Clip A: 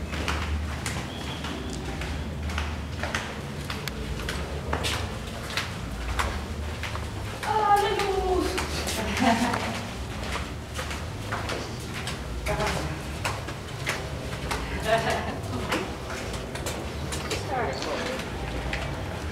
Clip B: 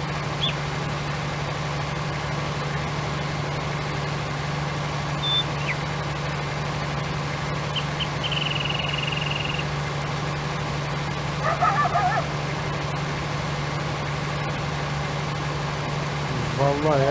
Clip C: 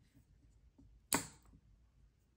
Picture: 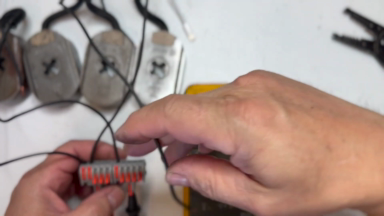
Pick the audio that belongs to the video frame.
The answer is C